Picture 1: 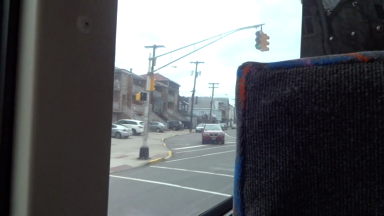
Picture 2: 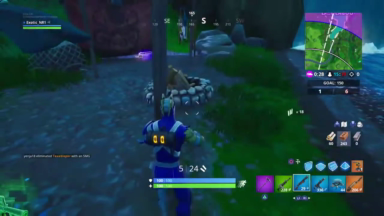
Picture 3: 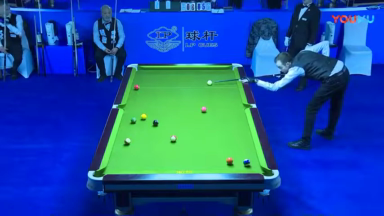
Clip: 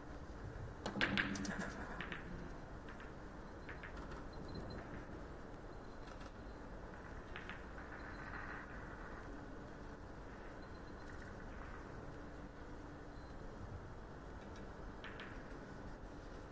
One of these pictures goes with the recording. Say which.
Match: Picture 3